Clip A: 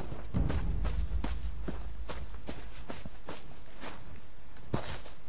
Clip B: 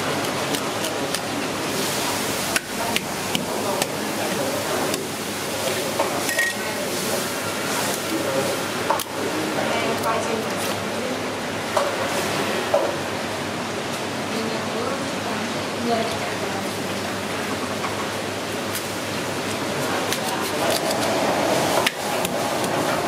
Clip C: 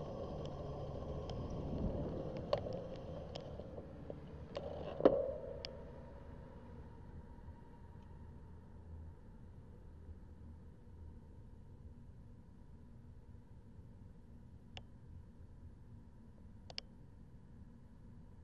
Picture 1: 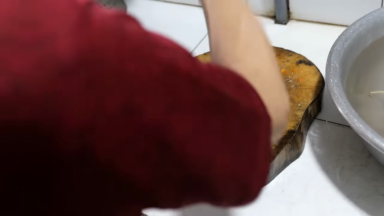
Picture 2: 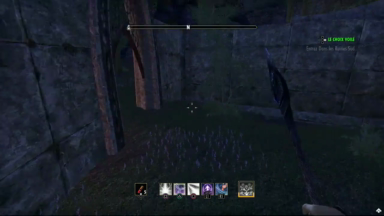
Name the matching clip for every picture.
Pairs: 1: B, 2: A